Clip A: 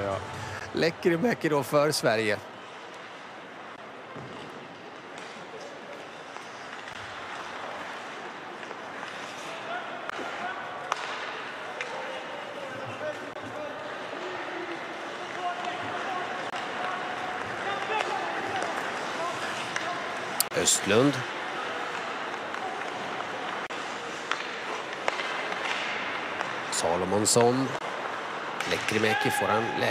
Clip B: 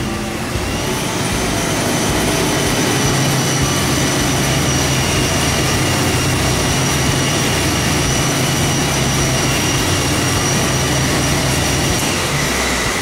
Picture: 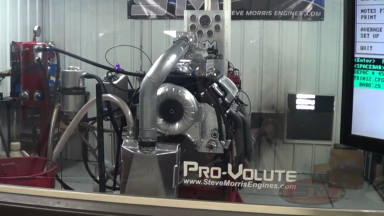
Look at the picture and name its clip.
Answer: B